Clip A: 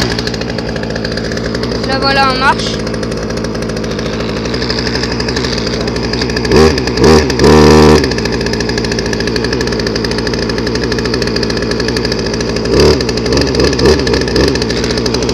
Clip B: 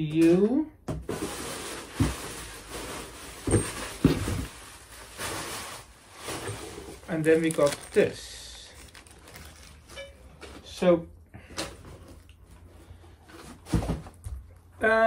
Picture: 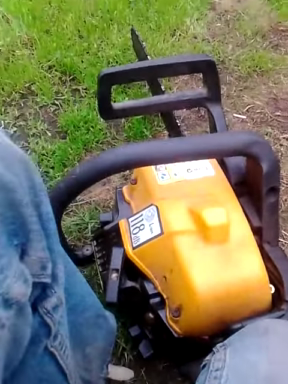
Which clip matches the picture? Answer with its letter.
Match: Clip A